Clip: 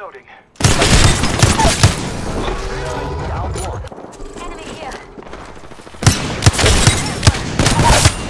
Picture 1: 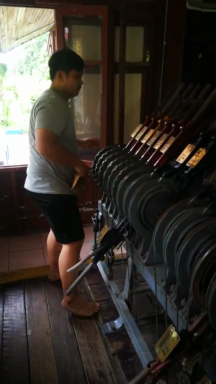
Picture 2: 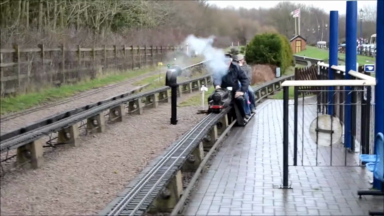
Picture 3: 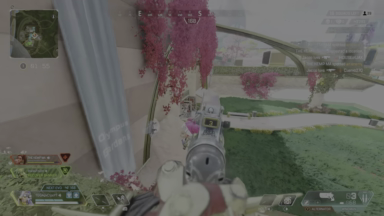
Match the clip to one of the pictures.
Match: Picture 3